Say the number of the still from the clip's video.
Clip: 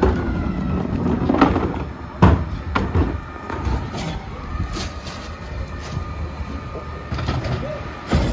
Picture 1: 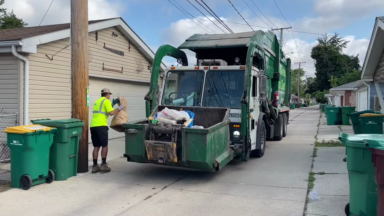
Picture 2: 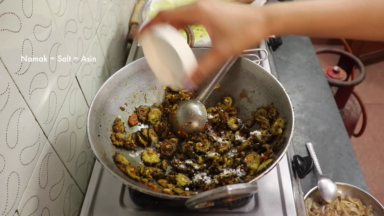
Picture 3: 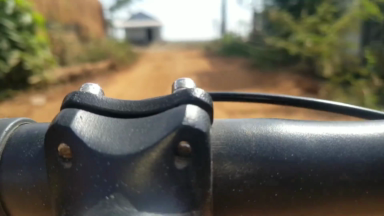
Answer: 1